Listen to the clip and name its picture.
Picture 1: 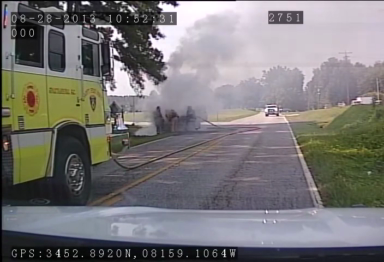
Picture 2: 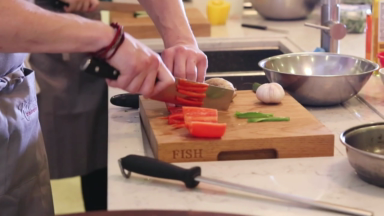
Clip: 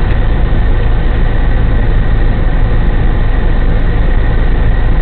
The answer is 1